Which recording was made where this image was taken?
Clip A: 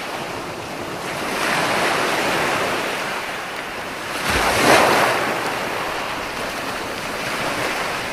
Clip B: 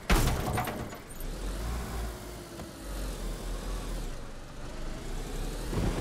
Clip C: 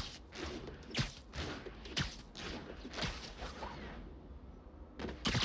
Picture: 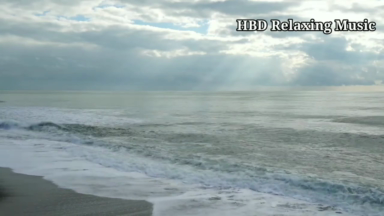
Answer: A